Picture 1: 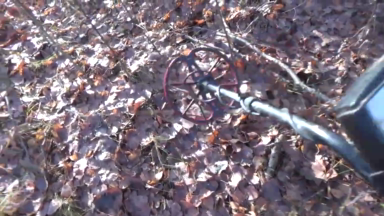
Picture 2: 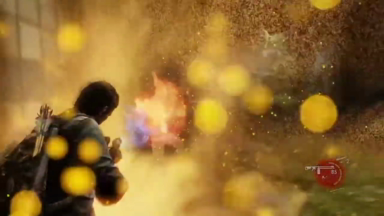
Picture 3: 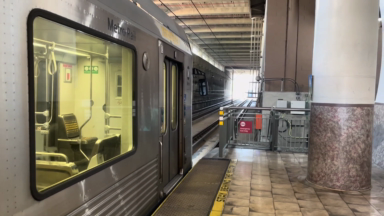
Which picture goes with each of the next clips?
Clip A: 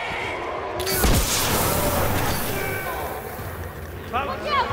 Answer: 2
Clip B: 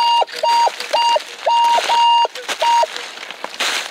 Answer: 1